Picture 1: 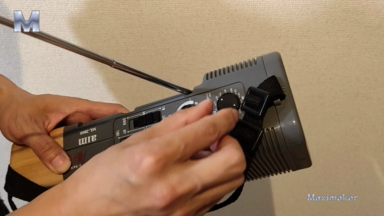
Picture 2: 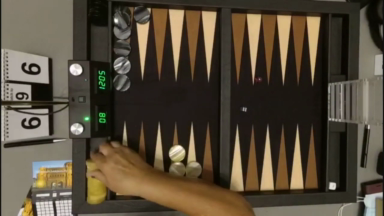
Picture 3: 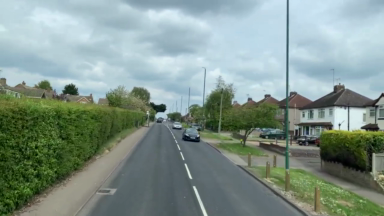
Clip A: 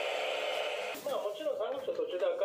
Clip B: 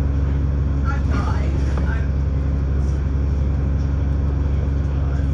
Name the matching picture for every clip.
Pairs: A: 1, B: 3